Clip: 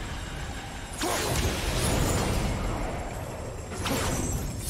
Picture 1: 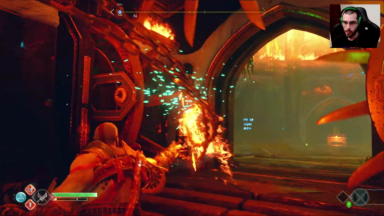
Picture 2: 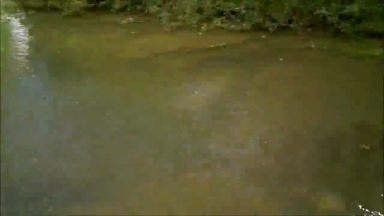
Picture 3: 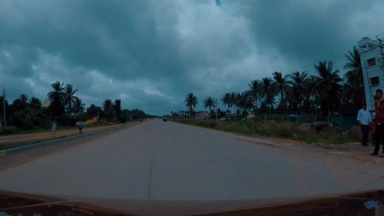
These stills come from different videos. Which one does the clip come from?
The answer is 1